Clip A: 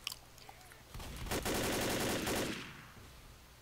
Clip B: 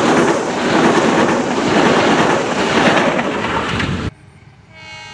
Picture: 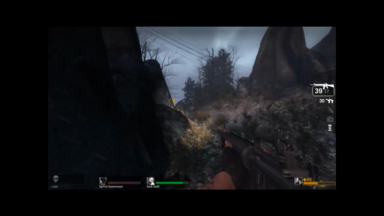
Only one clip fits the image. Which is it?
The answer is A